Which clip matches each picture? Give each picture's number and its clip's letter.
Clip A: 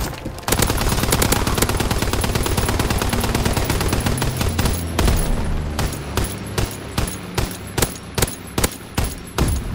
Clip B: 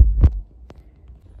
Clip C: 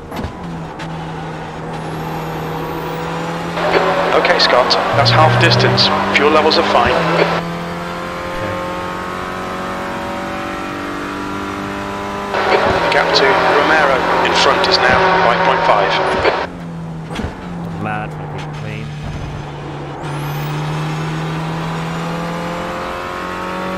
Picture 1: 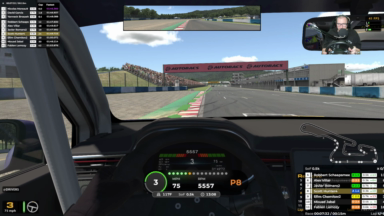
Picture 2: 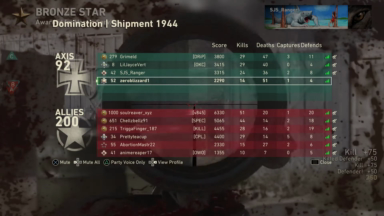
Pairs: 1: C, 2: A